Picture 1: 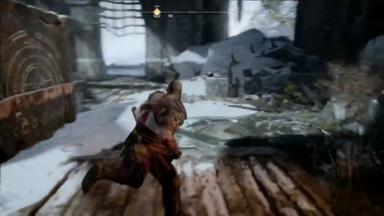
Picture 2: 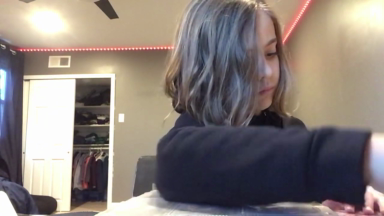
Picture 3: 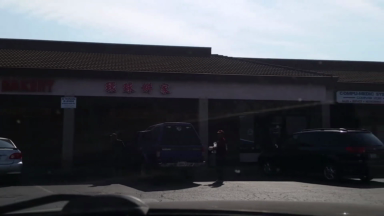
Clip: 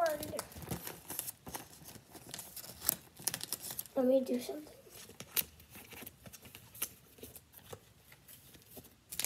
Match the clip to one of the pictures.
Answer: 2